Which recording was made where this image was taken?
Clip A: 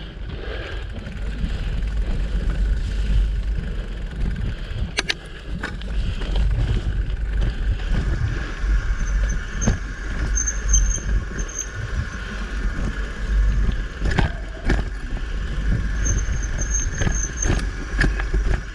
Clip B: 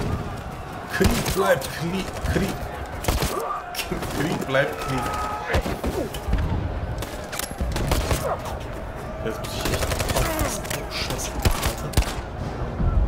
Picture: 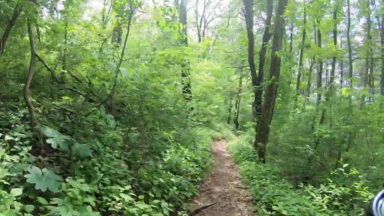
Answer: A